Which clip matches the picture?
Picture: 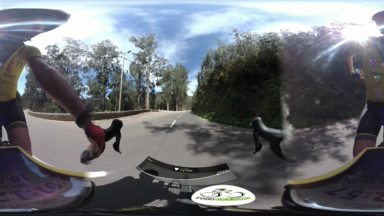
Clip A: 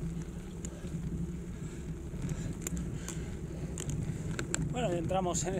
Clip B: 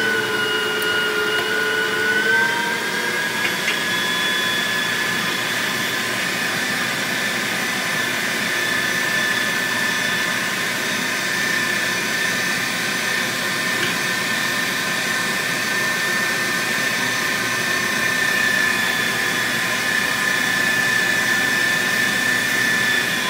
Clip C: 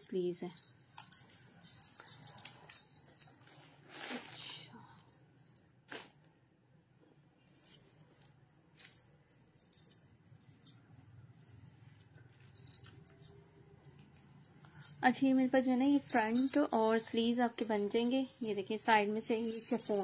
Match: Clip A